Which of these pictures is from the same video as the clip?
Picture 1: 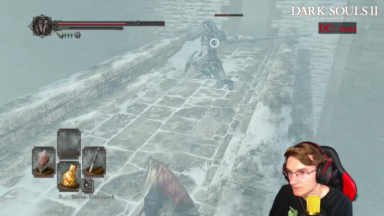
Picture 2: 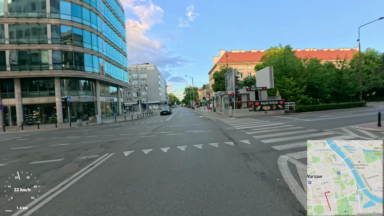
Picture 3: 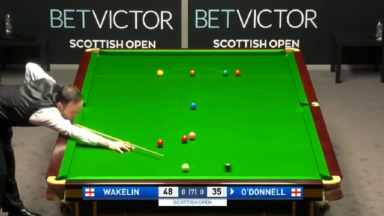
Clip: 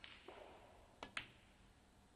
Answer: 3